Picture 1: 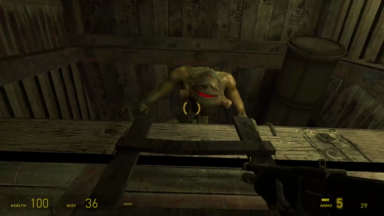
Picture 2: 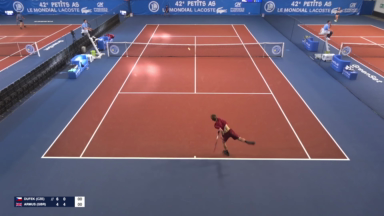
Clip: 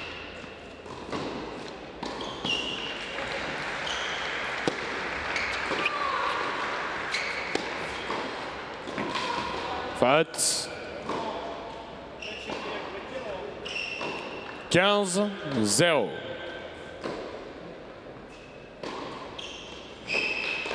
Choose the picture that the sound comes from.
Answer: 2